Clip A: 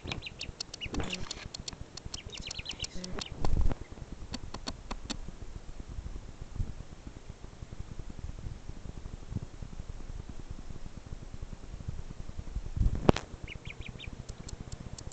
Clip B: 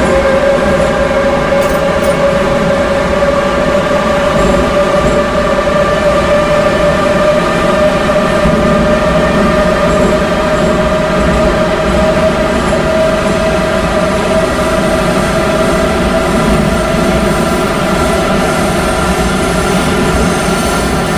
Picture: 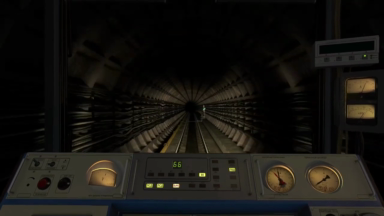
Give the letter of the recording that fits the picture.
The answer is B